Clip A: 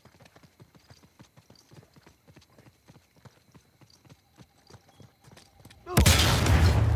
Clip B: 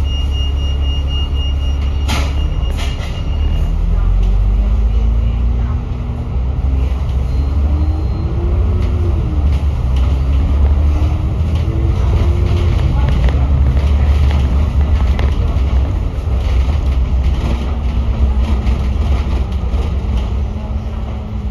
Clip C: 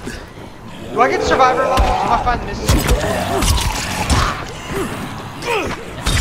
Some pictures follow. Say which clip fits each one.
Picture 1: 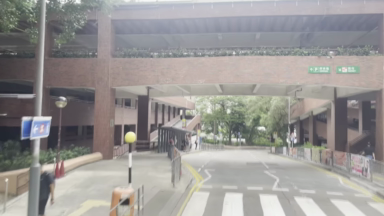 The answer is B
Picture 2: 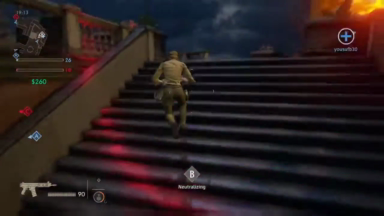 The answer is A